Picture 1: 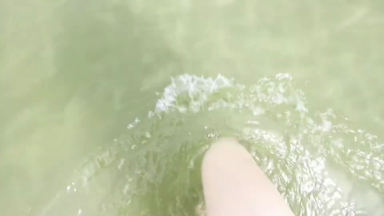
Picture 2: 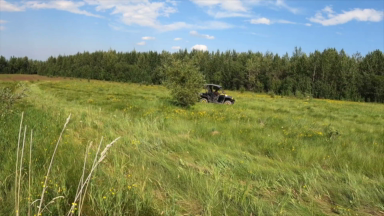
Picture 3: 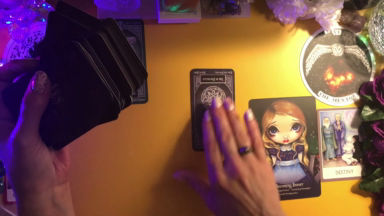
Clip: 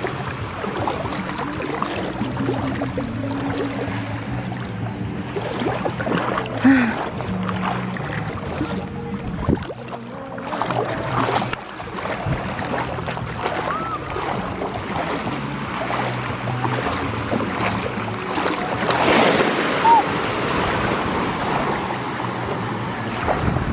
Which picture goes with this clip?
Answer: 1